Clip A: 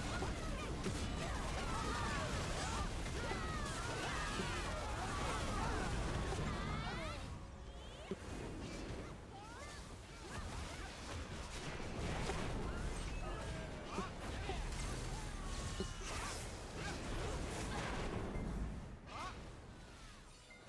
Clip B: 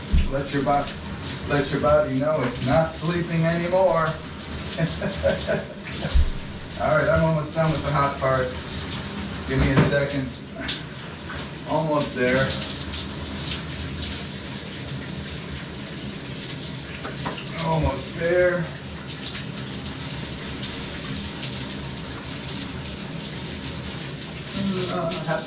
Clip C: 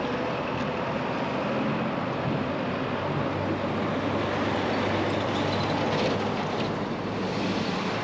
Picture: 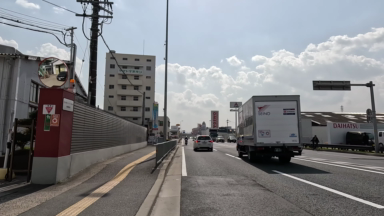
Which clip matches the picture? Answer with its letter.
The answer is C